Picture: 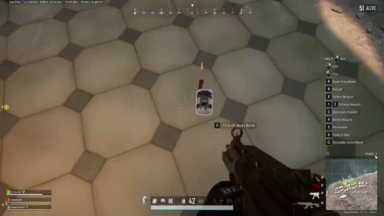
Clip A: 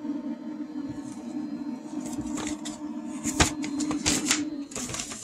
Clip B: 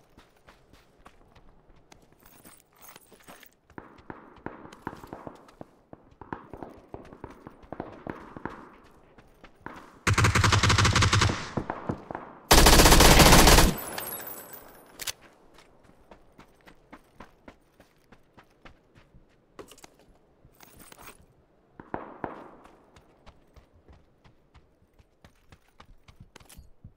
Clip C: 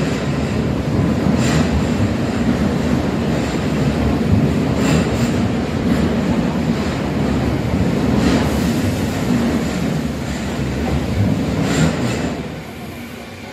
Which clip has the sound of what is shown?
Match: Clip B